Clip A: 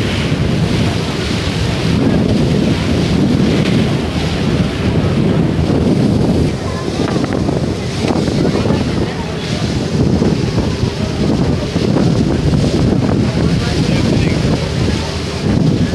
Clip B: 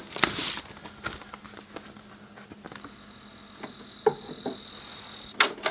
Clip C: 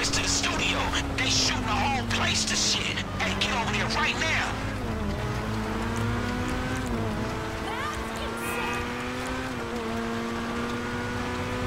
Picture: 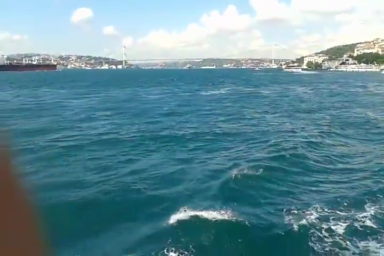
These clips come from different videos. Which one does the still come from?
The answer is A